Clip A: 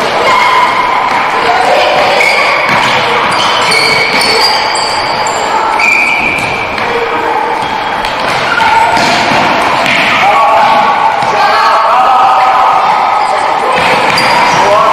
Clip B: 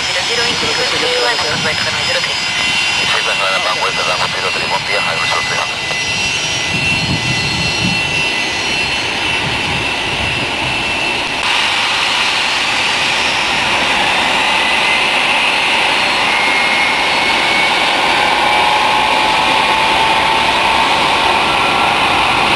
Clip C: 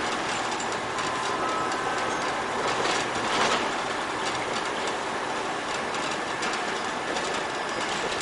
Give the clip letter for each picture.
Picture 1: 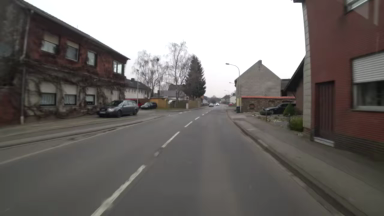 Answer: C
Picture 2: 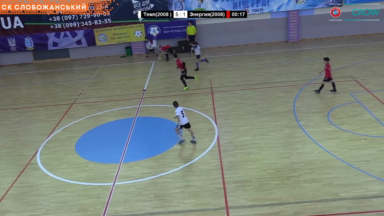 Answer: A